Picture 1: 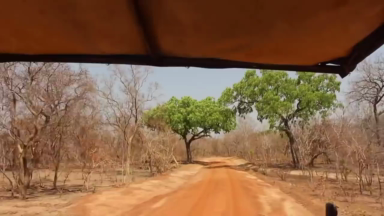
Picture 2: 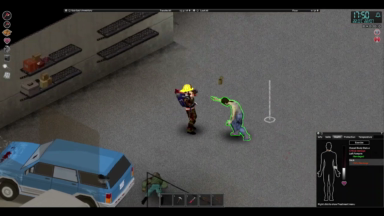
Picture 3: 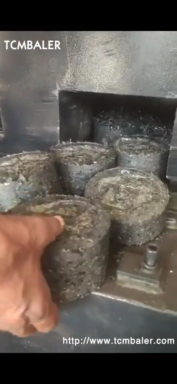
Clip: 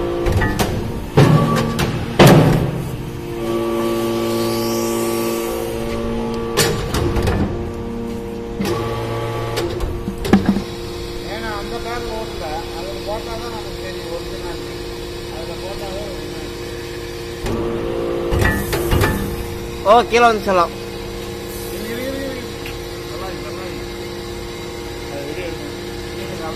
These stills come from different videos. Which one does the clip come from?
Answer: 3